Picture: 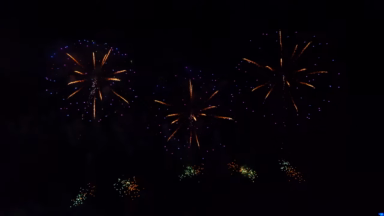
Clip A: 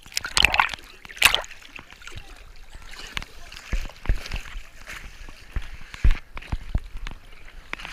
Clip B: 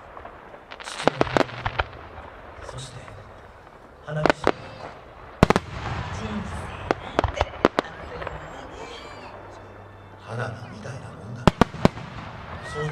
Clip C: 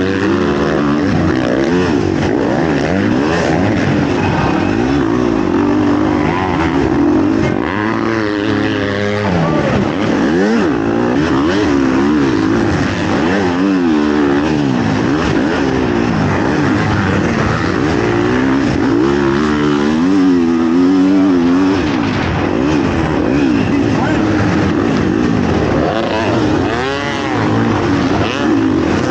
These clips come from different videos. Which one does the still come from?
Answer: B